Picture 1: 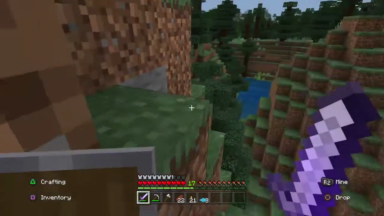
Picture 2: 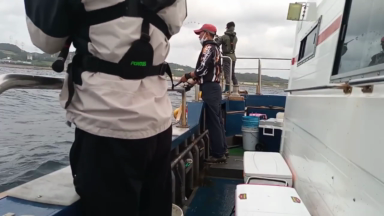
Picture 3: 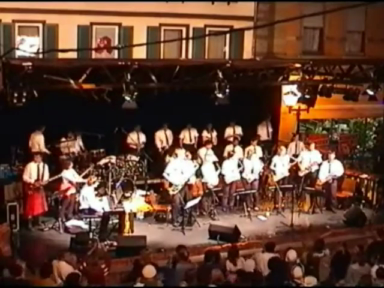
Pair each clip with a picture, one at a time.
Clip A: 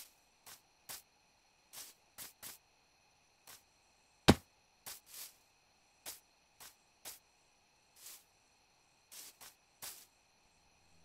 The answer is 1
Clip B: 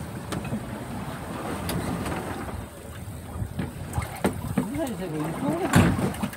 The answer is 2